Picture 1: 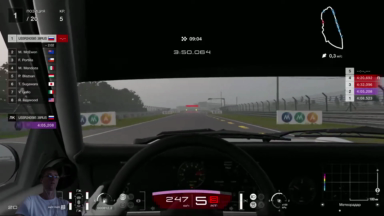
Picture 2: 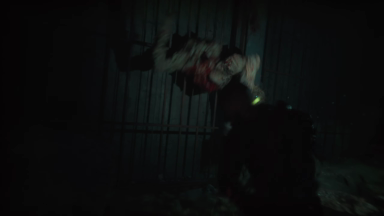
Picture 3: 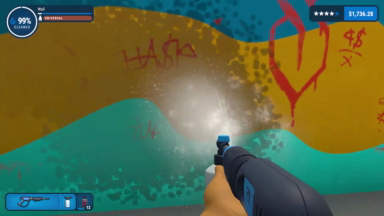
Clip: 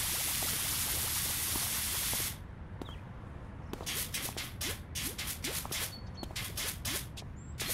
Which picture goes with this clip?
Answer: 3